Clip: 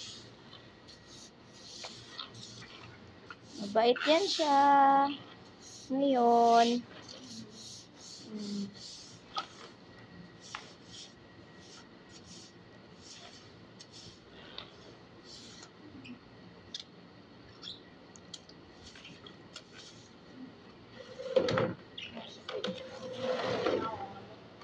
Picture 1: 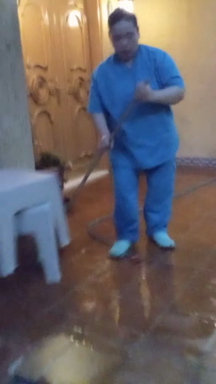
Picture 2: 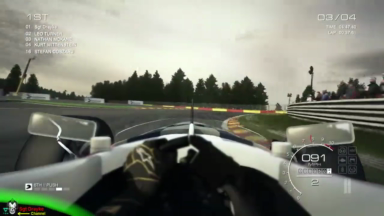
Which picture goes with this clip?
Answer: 1